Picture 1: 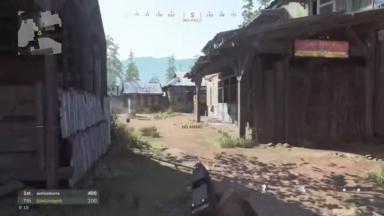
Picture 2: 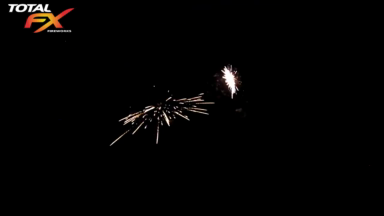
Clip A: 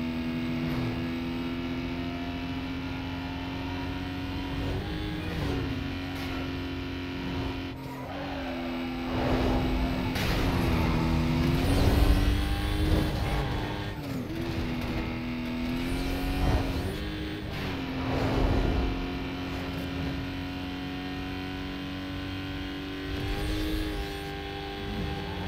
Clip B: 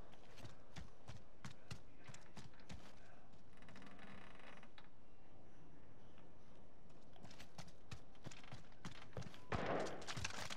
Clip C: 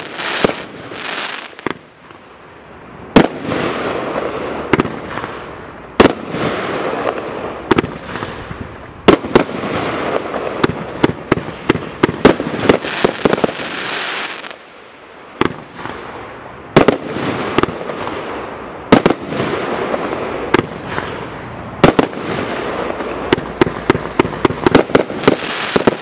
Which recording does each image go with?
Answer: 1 B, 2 C